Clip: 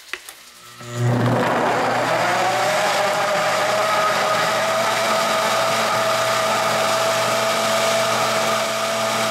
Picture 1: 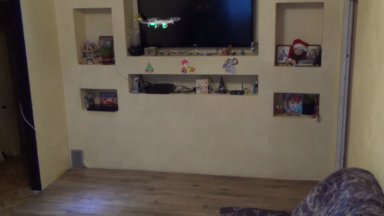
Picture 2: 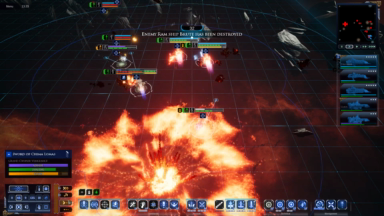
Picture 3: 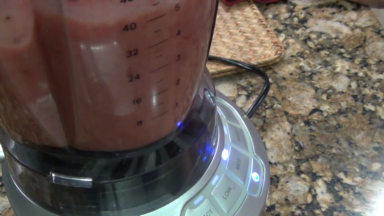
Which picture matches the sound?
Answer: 3